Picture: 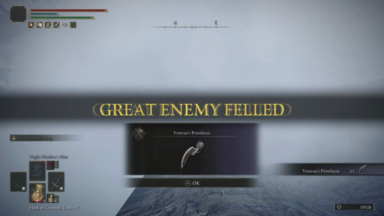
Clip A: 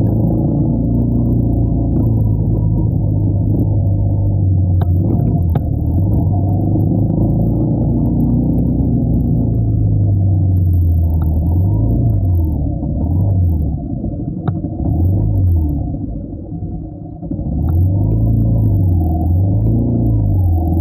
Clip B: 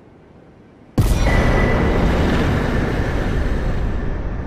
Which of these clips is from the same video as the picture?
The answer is B